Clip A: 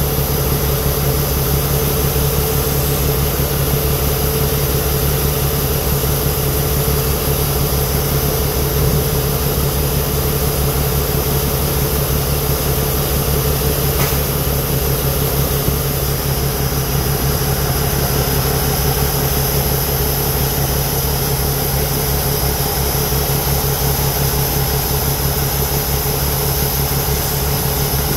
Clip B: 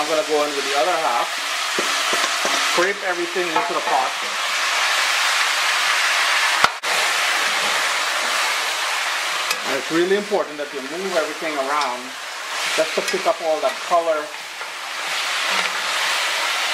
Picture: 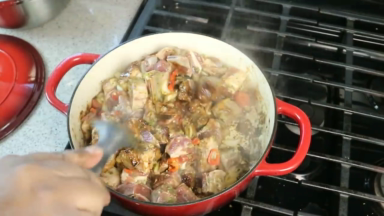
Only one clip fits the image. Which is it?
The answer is B